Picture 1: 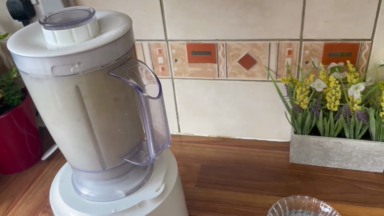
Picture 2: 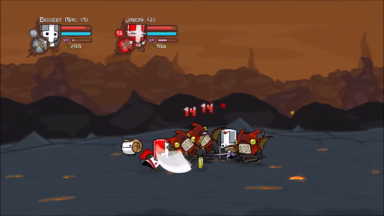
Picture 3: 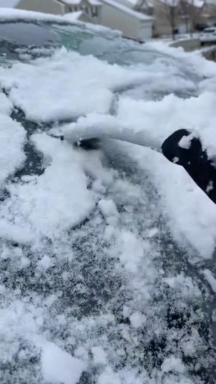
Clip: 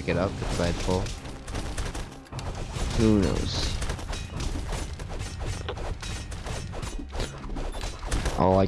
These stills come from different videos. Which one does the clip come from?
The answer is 2